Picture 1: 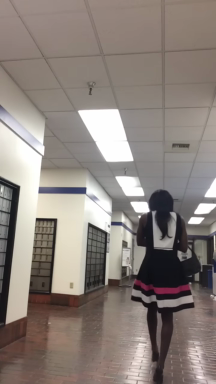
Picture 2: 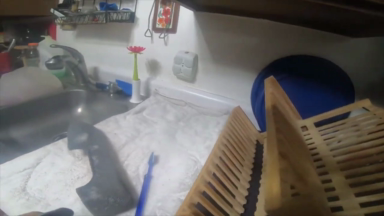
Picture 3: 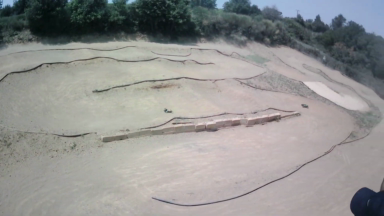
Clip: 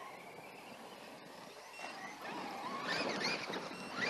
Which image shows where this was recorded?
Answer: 3